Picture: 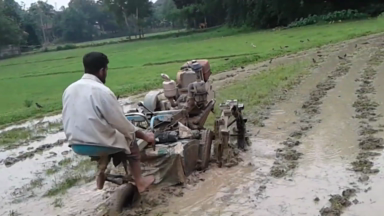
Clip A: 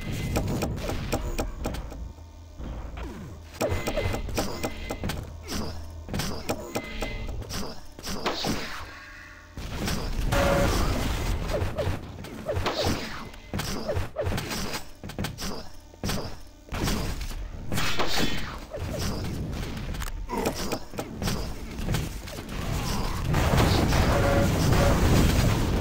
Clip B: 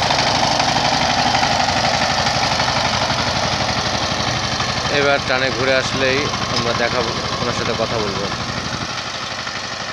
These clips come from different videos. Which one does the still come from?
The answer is B